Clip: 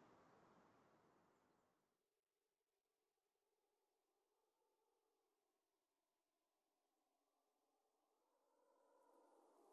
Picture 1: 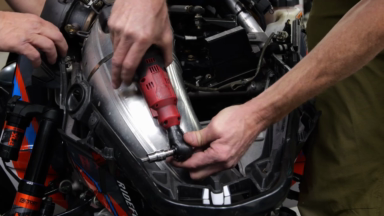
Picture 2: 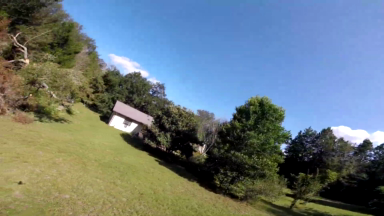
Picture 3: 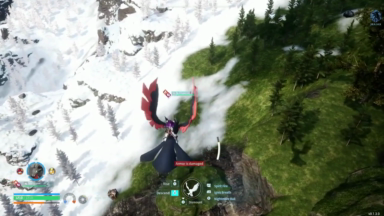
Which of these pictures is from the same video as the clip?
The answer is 3